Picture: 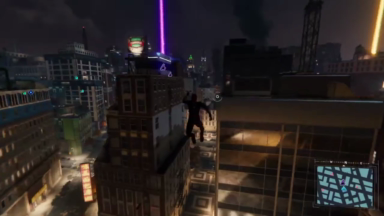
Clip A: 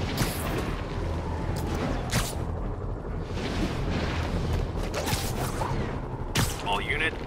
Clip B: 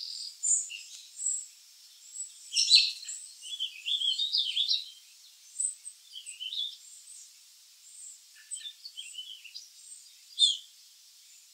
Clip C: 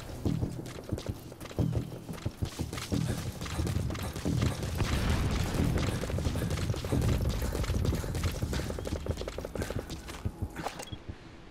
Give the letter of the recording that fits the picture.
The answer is A